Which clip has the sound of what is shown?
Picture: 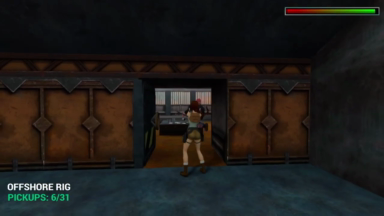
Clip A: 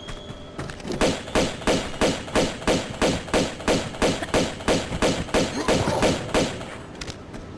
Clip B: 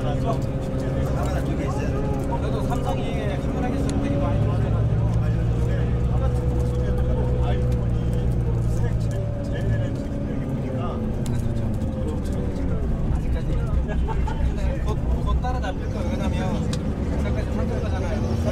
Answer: A